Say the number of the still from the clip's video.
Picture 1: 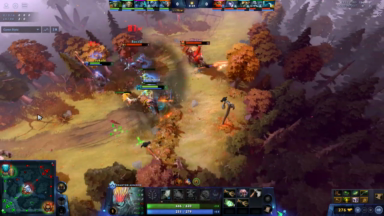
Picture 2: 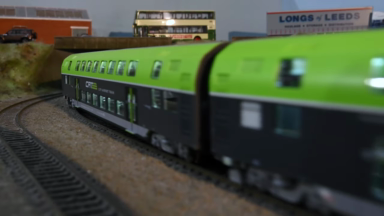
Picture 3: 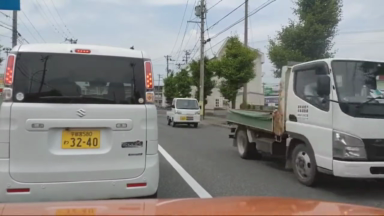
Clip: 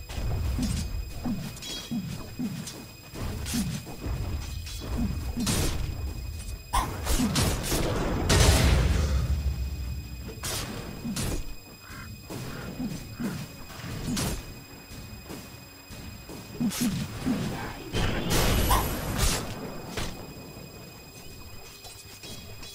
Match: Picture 1